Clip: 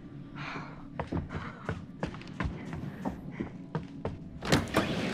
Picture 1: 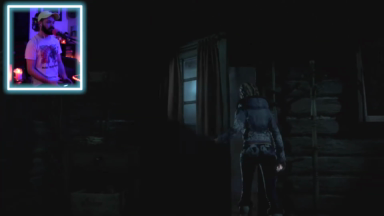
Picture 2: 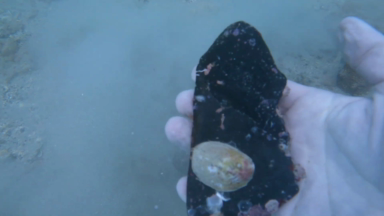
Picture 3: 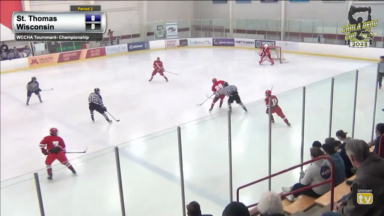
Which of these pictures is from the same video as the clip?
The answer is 1